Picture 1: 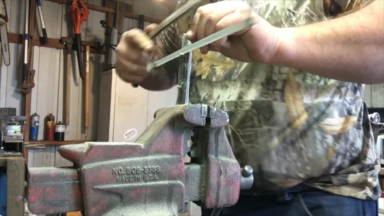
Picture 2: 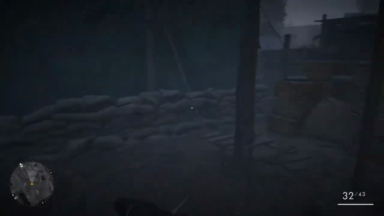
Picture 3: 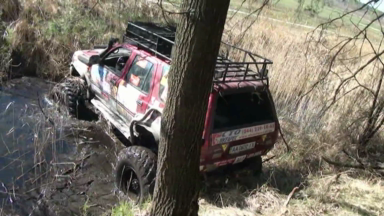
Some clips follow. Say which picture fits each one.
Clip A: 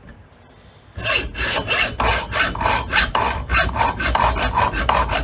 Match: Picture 1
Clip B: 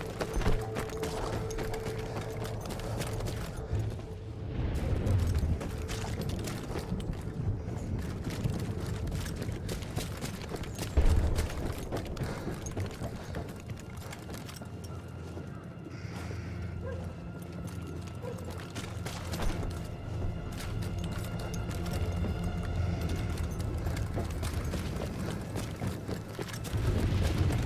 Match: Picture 2